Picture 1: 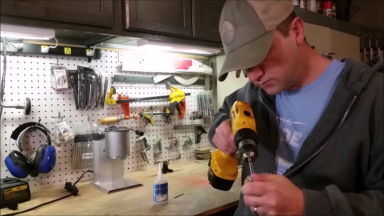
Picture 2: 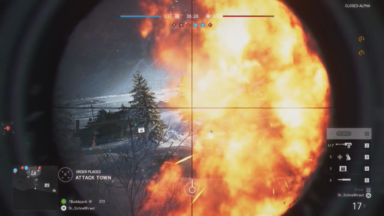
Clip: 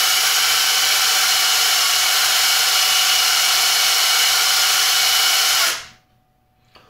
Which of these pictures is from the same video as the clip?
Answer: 1